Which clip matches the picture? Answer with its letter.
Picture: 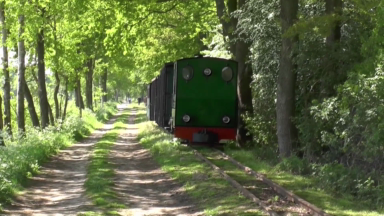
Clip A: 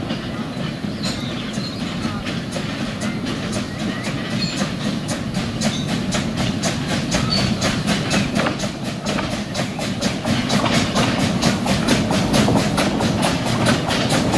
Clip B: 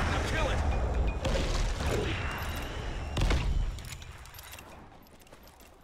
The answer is A